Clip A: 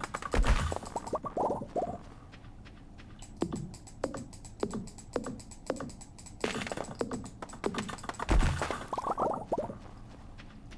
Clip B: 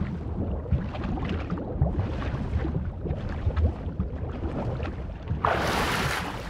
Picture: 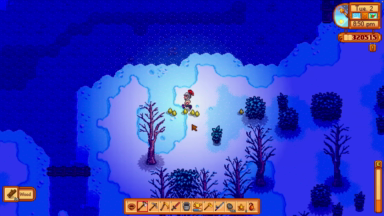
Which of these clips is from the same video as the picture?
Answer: A